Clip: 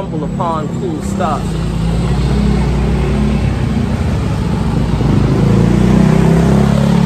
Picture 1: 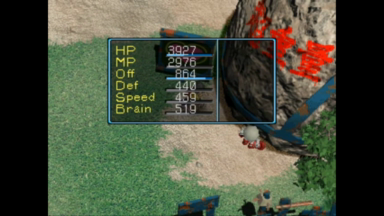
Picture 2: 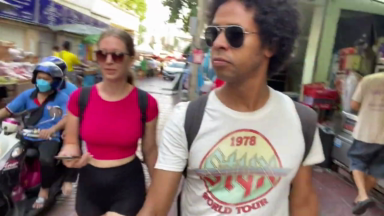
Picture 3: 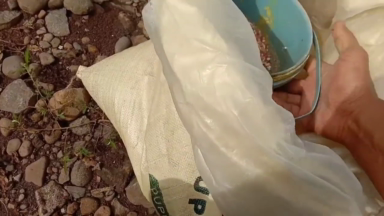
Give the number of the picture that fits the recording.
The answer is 2